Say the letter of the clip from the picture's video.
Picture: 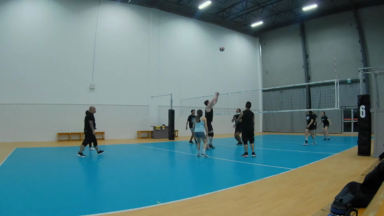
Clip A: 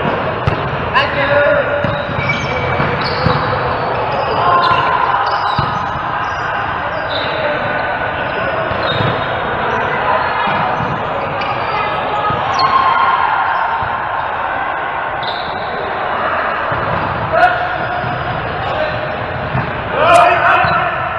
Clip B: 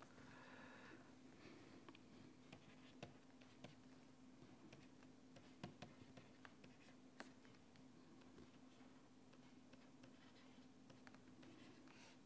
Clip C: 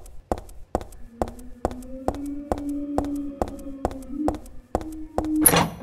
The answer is A